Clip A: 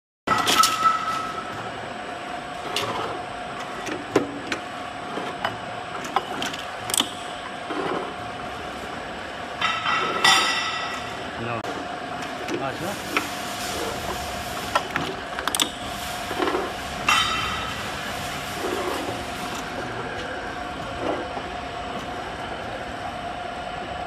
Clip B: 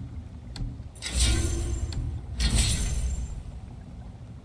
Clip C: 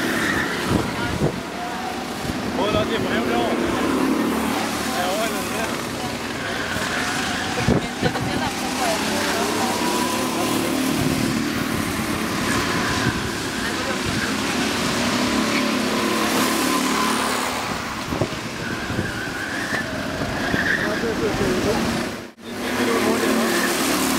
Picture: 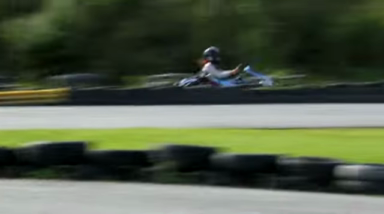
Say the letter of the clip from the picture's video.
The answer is C